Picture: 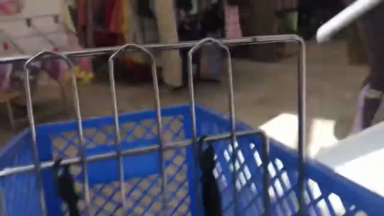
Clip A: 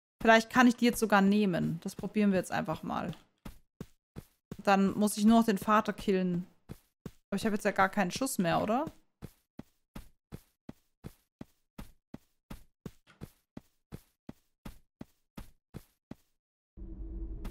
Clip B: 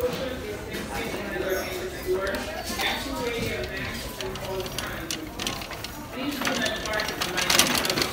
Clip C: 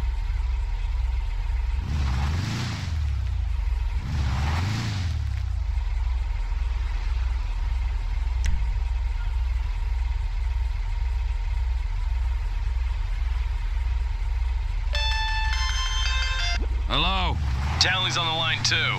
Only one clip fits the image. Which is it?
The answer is B